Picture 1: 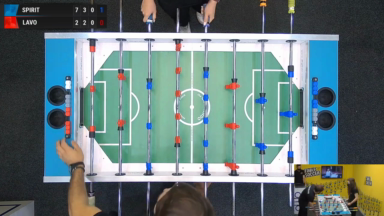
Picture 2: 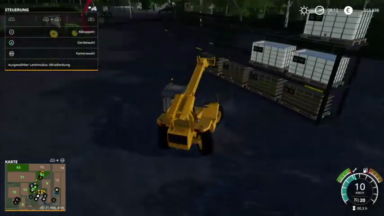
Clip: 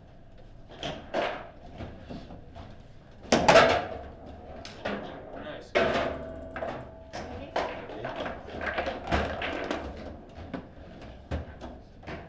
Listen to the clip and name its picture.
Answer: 1